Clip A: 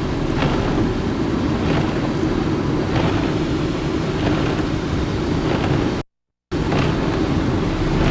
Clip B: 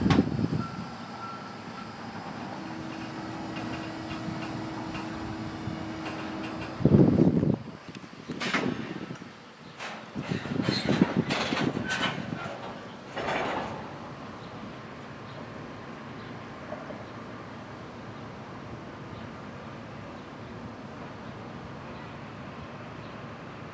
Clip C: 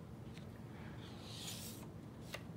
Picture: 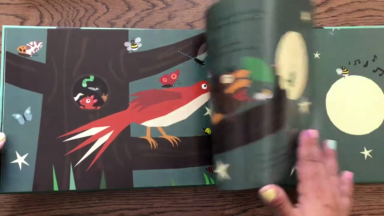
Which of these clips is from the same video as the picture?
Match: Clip C